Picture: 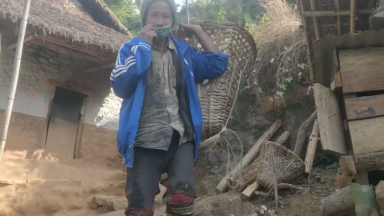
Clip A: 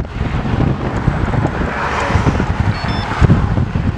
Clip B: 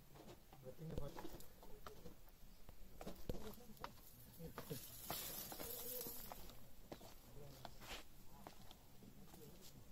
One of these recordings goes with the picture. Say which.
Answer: B